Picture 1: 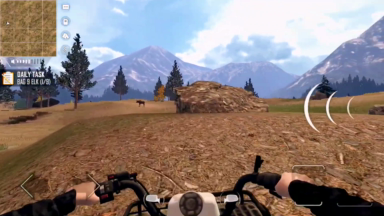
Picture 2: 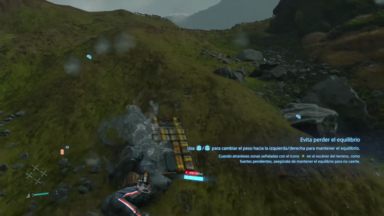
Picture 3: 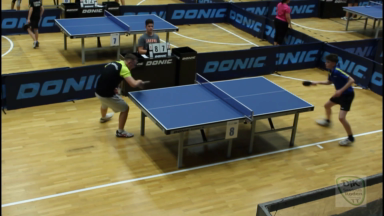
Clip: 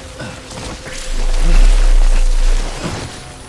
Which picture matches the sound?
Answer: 2